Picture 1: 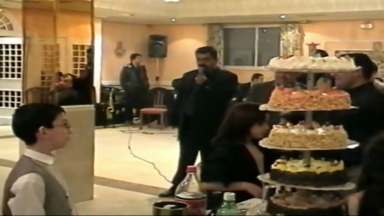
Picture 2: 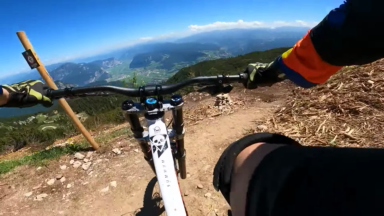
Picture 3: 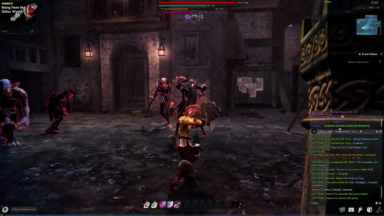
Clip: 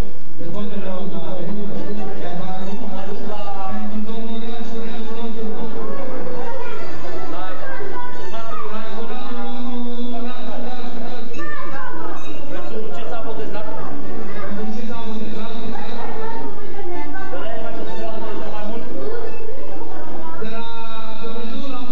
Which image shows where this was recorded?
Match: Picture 1